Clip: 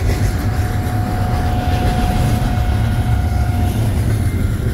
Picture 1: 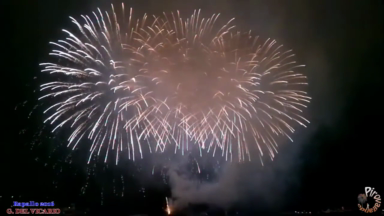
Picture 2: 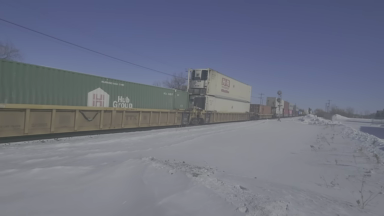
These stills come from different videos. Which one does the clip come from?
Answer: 2